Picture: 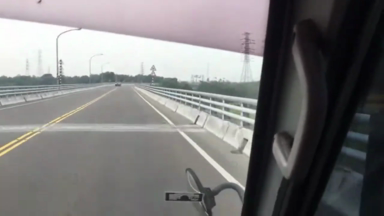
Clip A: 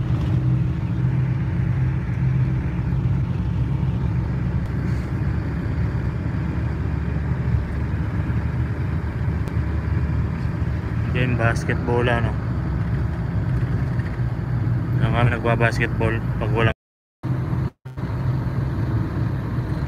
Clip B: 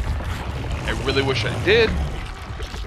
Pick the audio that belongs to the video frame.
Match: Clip A